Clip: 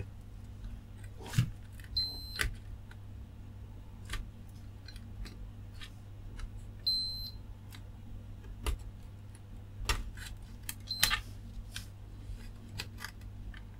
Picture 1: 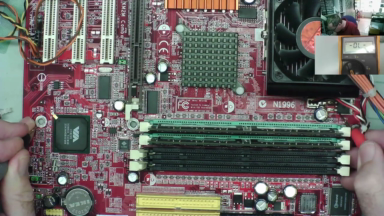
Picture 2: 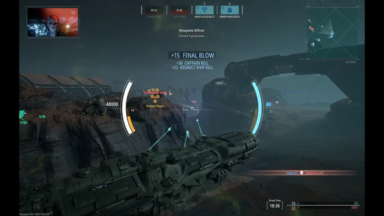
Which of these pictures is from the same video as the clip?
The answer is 1